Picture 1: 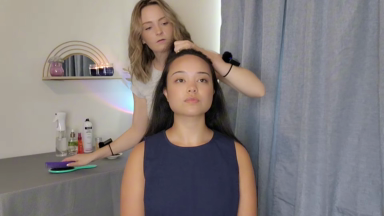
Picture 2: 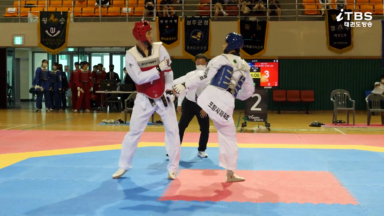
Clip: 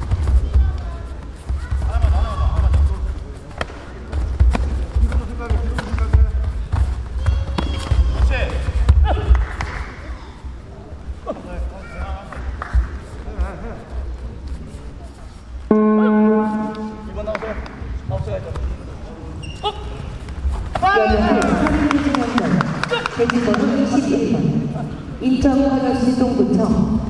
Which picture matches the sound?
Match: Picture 2